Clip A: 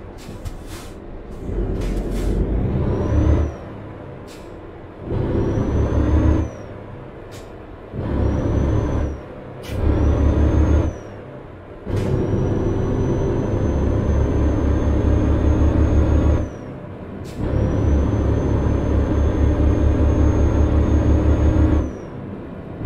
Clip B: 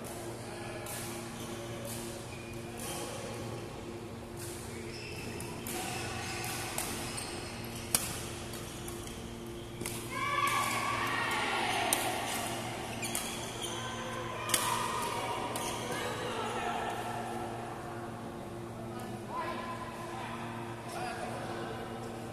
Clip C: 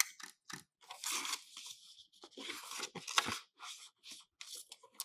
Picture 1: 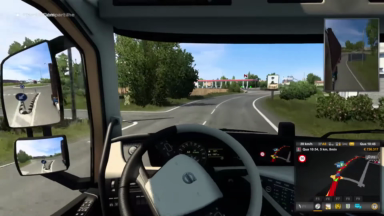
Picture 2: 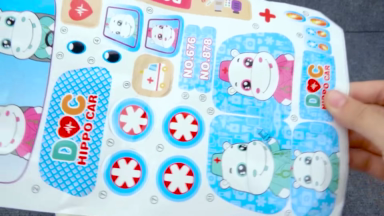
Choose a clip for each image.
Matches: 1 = A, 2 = C